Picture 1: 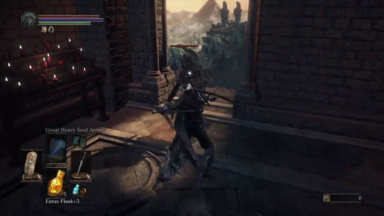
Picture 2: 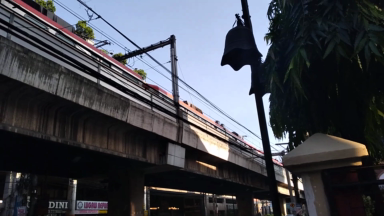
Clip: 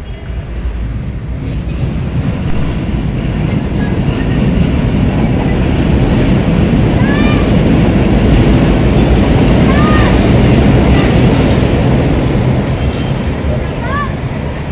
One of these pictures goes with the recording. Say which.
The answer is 2